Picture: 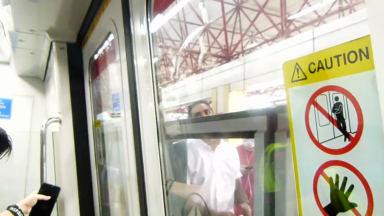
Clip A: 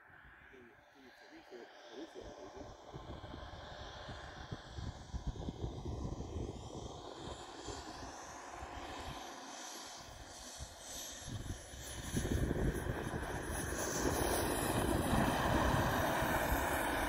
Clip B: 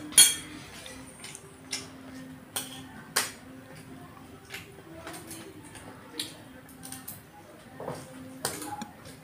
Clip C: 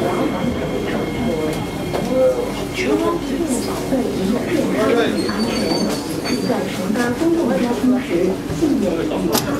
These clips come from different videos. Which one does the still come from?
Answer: C